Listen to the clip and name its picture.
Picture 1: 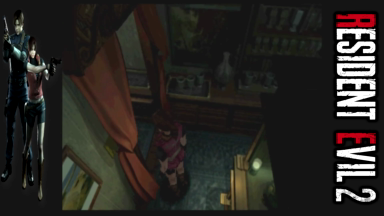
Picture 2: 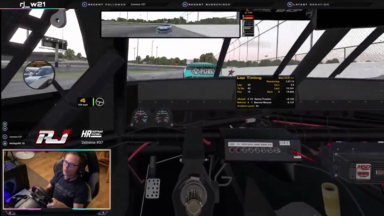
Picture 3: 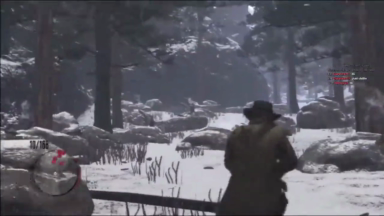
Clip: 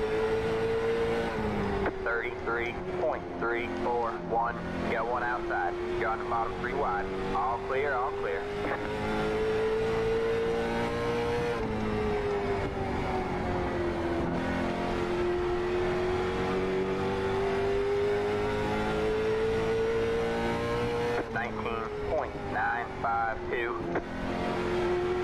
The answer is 2